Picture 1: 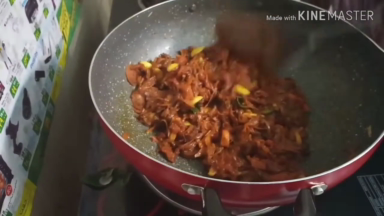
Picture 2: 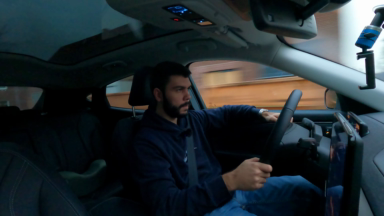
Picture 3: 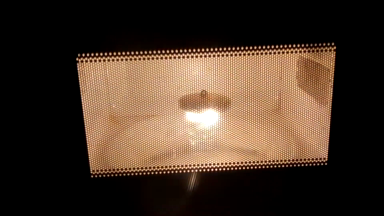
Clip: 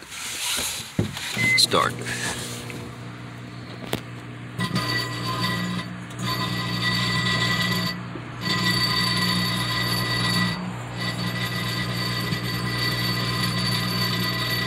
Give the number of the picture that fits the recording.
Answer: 3